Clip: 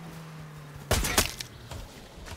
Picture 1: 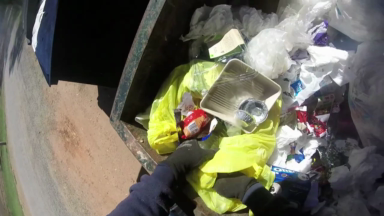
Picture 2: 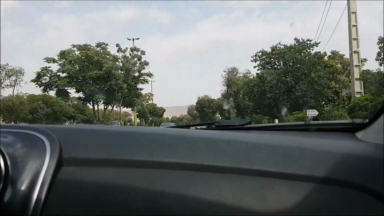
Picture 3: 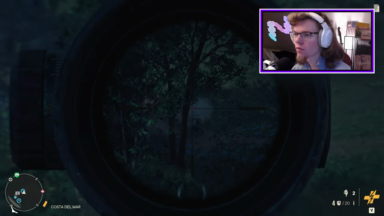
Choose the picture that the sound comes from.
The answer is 3